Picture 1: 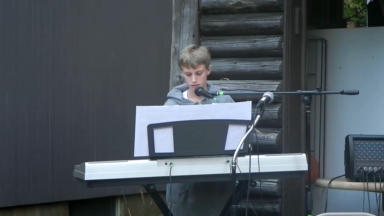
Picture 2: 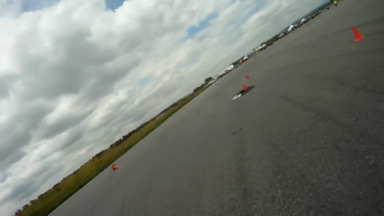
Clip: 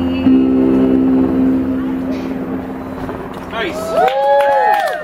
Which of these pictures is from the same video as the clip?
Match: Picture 1